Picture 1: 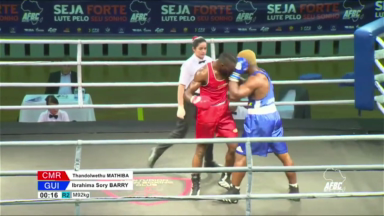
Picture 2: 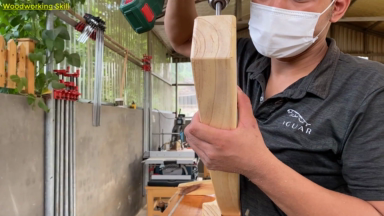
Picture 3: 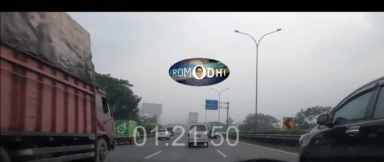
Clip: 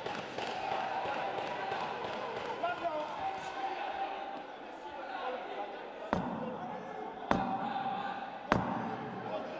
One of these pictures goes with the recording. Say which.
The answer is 1